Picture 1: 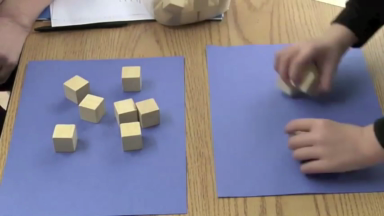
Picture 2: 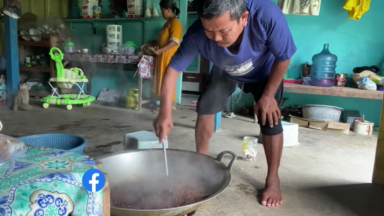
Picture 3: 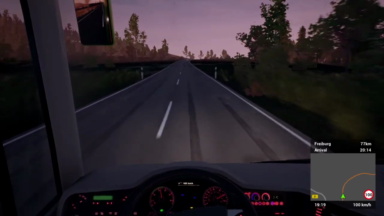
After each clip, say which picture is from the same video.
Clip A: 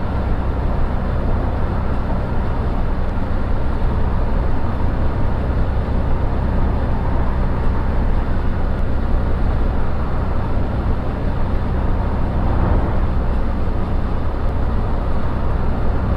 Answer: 3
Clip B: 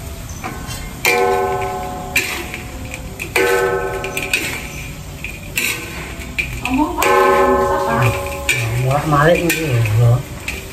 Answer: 2